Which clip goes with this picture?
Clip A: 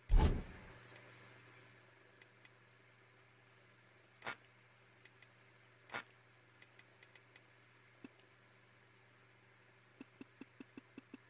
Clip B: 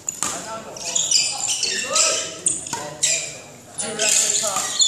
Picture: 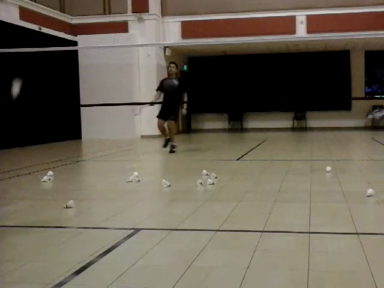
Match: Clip B